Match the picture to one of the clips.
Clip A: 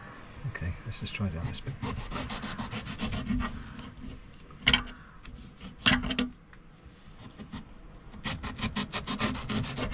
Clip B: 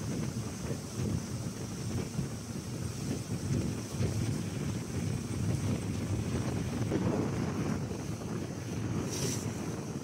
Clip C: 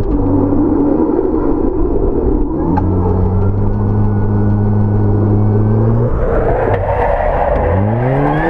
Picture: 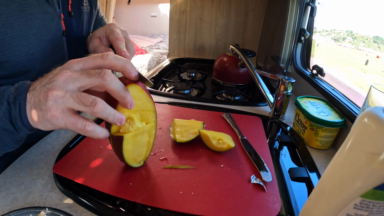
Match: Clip A